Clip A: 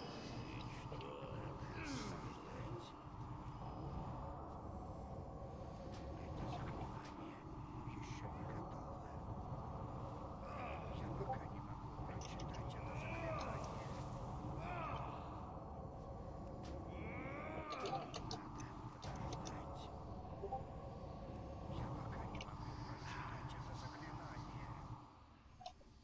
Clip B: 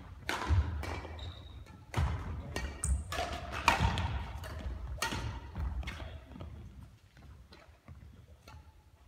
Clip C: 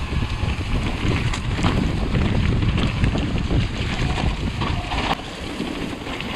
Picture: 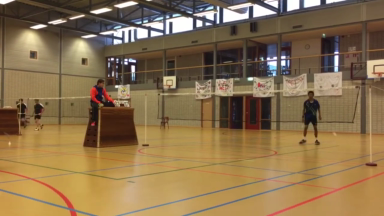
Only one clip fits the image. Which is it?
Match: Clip B